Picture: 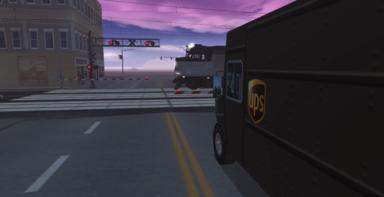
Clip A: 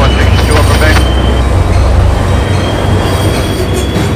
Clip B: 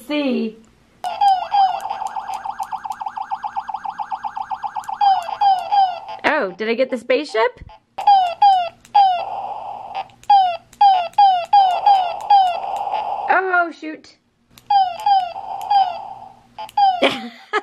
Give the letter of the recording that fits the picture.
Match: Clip A